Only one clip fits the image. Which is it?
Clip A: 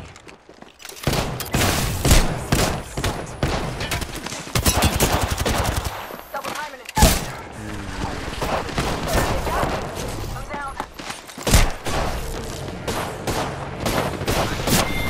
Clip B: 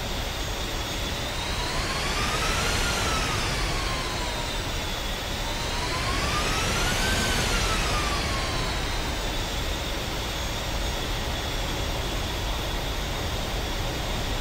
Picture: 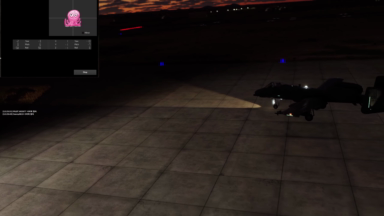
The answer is B